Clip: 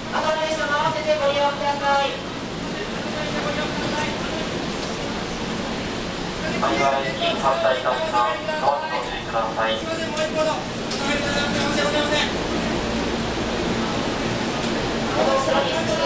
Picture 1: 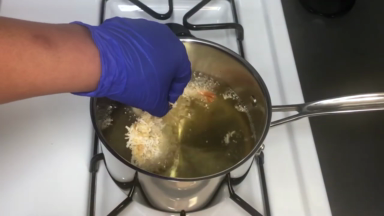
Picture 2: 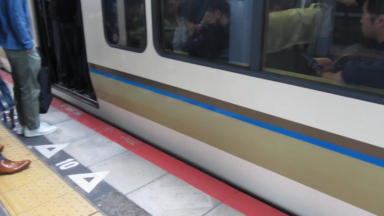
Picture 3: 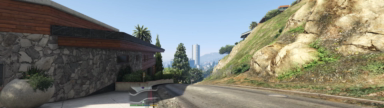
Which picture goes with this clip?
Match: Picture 2